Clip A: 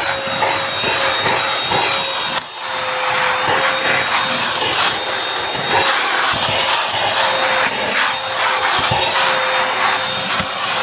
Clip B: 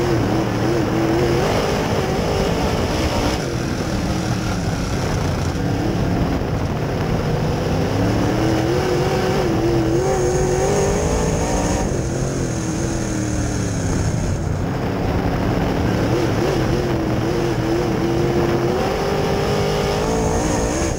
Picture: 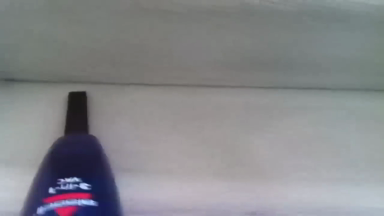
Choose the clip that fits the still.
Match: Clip A